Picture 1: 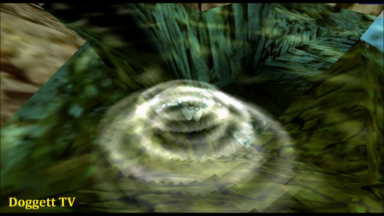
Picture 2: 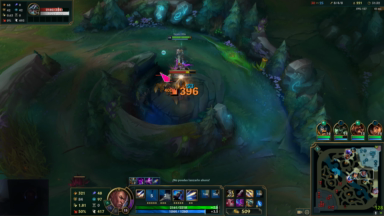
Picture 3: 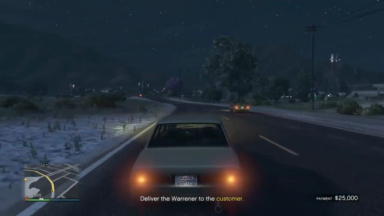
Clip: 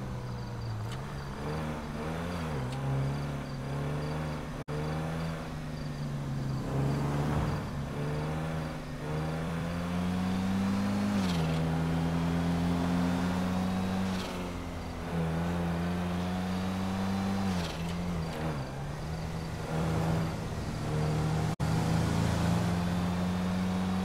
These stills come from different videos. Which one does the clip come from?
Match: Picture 3